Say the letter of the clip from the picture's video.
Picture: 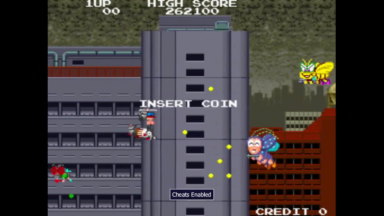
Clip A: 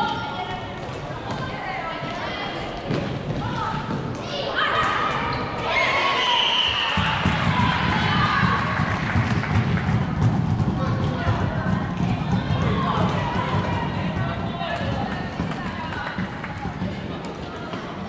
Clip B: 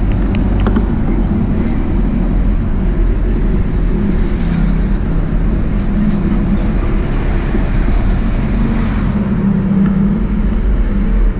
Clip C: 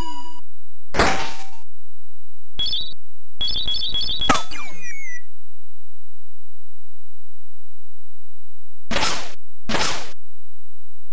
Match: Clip C